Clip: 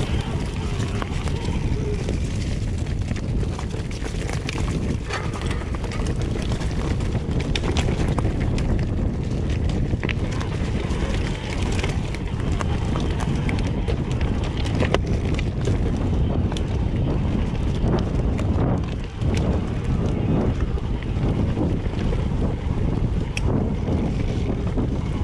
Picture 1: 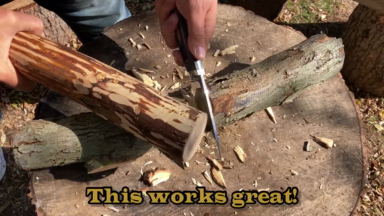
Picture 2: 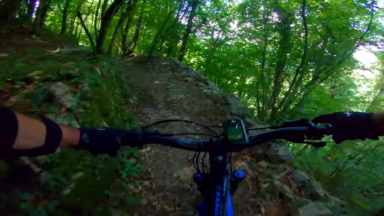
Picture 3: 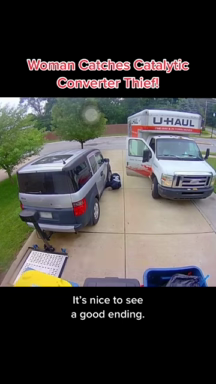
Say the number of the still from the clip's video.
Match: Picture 2